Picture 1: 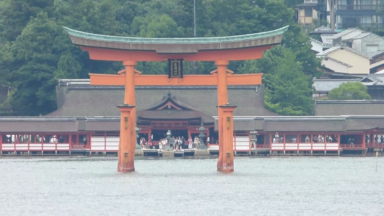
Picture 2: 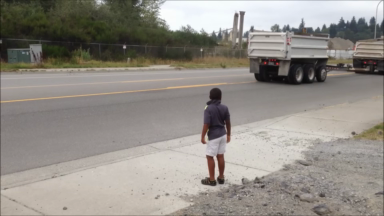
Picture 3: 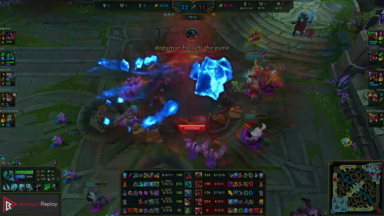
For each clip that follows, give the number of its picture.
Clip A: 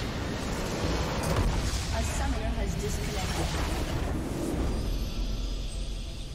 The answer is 3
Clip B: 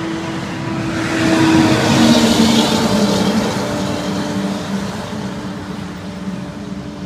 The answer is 2